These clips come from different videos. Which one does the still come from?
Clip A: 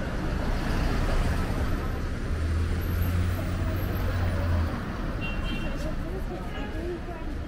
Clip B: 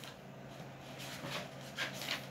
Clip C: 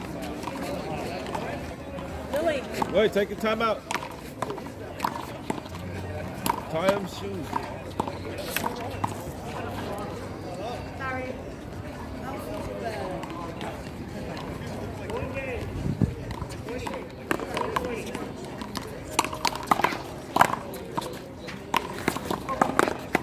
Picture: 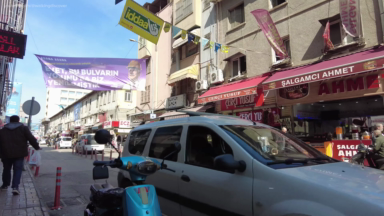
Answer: A